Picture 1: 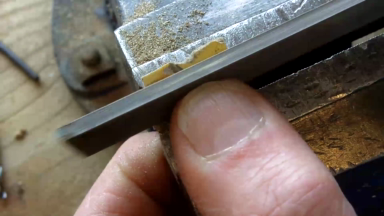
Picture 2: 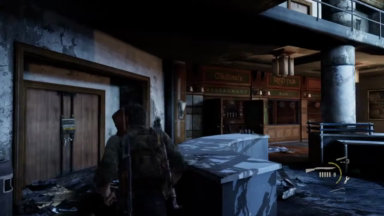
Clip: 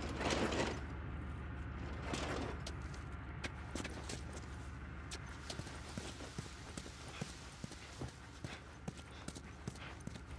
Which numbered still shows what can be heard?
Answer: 2